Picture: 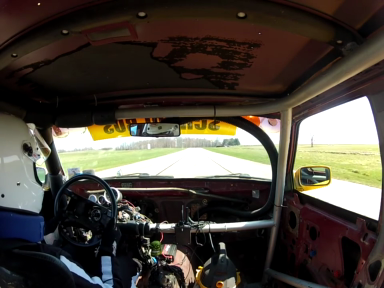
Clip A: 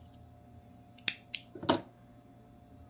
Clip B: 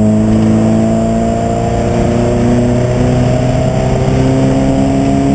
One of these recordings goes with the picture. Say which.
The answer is B